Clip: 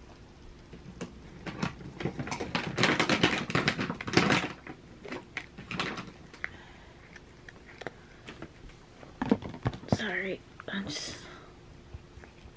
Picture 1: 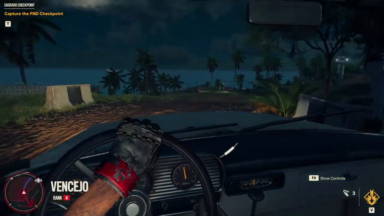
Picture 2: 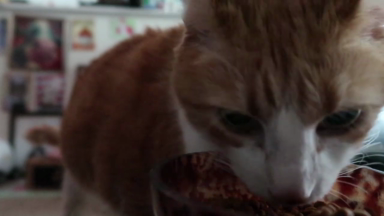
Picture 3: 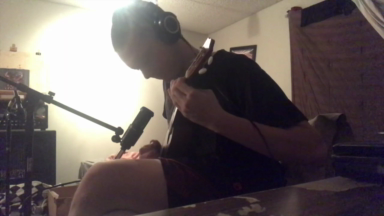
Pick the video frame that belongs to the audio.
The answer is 2